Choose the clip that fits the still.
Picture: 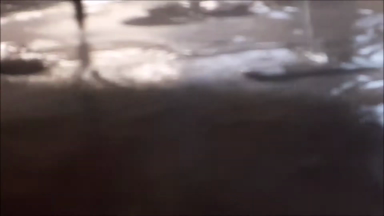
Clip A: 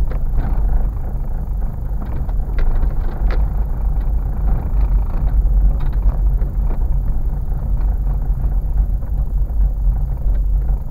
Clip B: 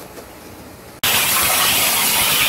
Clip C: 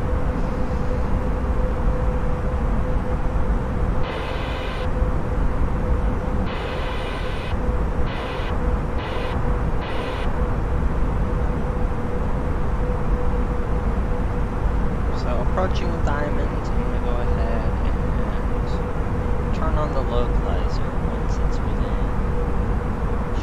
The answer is B